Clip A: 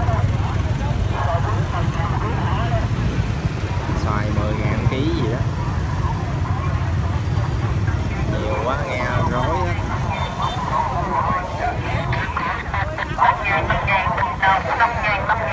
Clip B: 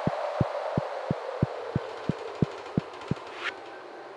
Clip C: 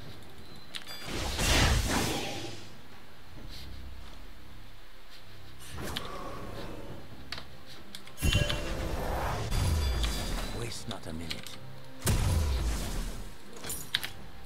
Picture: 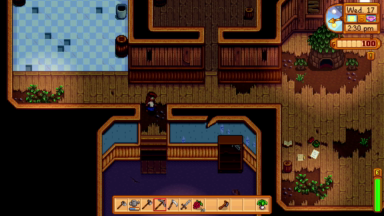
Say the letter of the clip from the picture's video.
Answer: B